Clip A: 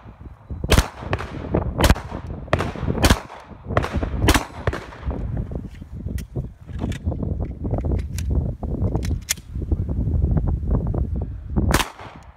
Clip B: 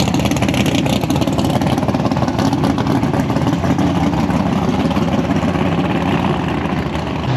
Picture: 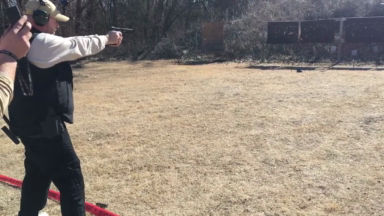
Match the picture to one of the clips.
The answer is A